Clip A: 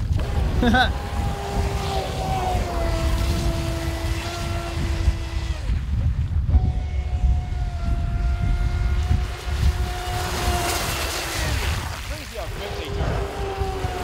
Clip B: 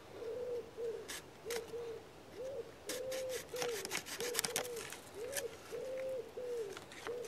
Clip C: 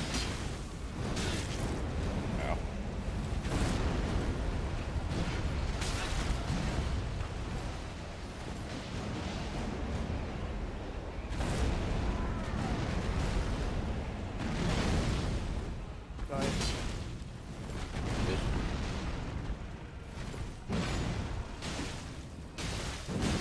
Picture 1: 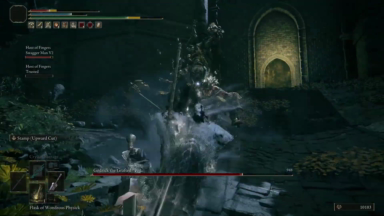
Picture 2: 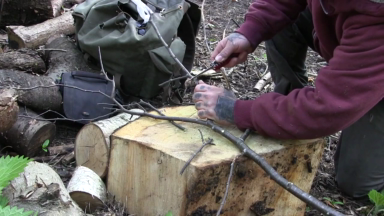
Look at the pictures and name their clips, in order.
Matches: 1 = C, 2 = B